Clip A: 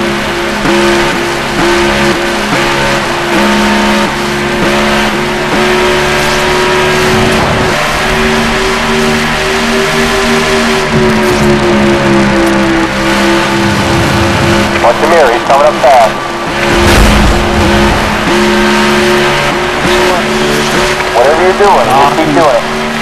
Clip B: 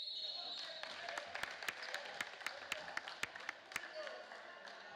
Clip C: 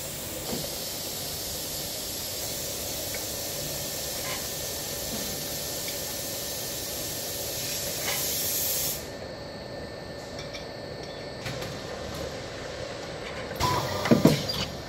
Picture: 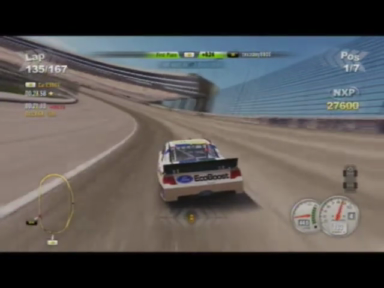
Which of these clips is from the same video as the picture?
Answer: A